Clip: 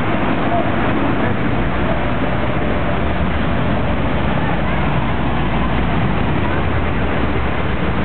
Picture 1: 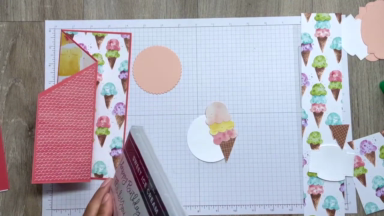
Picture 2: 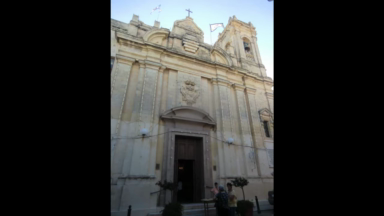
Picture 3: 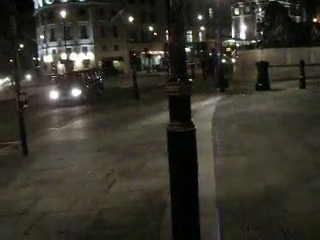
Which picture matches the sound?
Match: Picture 3